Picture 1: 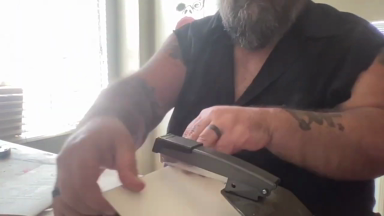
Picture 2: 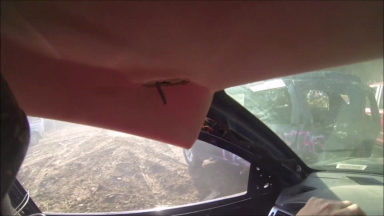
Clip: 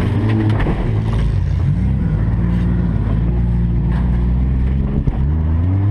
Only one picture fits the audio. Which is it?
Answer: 2